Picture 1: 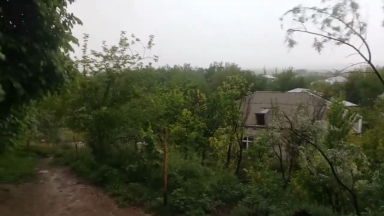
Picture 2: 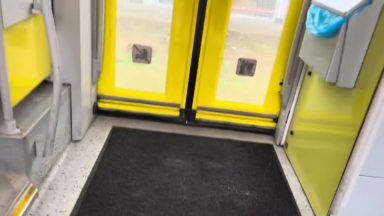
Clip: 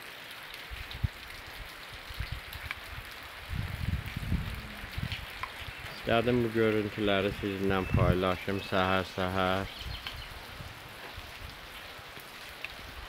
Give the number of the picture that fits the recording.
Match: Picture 1